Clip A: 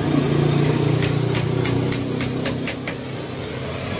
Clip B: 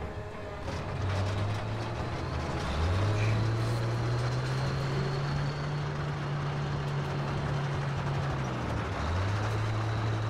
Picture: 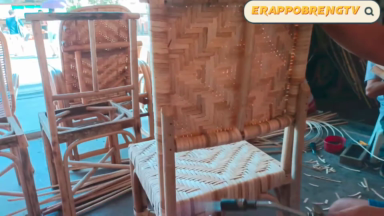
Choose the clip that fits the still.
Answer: A